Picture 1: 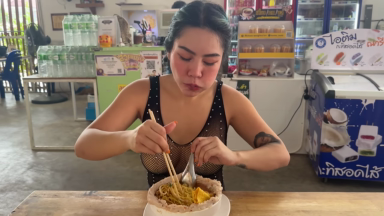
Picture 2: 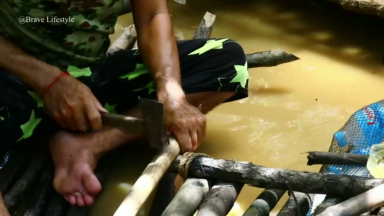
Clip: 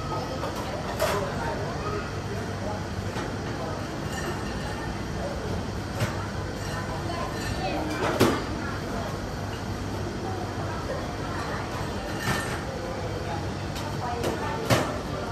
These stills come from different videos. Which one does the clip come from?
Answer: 1